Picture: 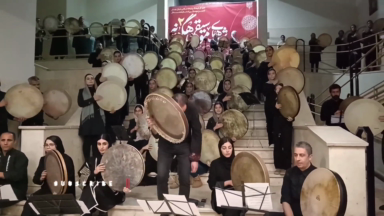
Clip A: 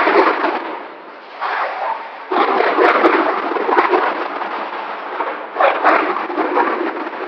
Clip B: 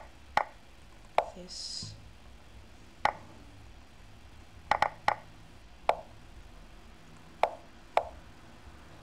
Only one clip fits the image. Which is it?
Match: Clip A